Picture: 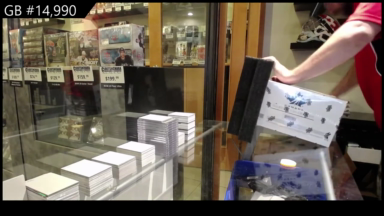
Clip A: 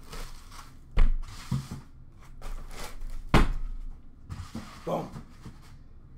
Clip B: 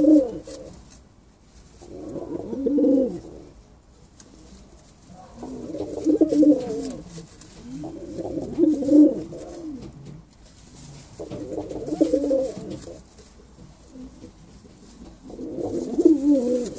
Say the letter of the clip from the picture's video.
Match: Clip A